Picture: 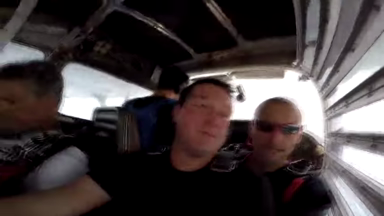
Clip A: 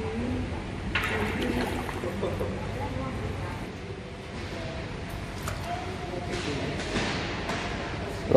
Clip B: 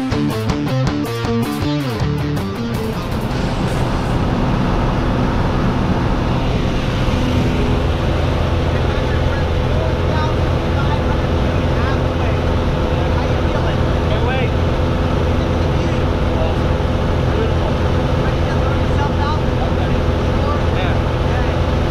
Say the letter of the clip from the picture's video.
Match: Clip B